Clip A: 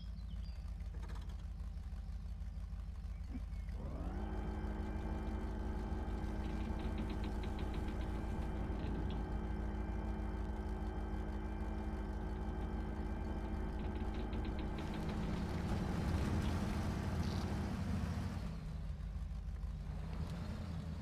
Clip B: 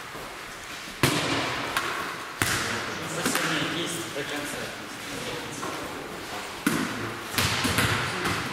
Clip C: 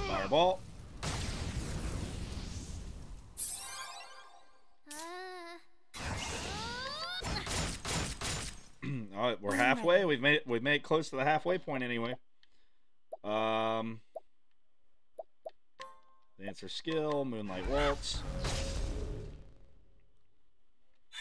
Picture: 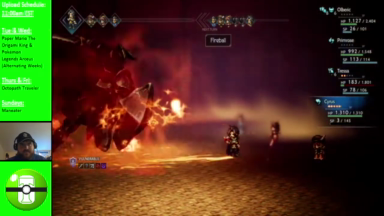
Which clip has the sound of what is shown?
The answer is C